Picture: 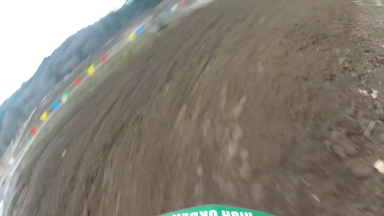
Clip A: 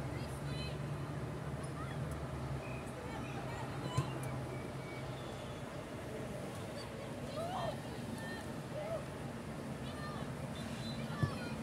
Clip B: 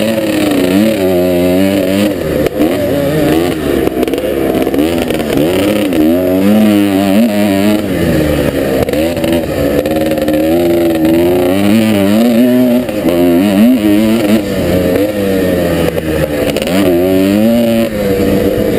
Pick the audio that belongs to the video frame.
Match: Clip B